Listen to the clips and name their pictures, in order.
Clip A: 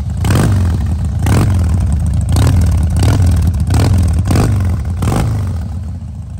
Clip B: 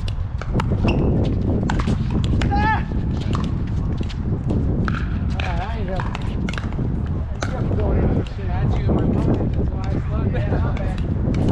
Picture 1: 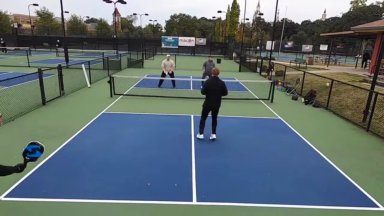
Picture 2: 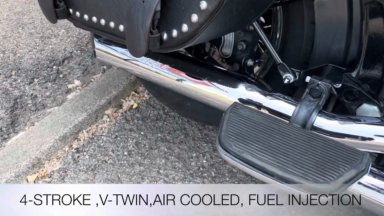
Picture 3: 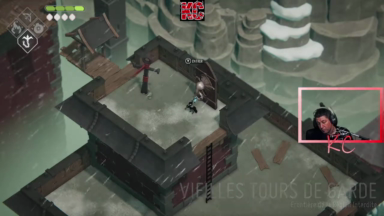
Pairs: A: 2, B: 1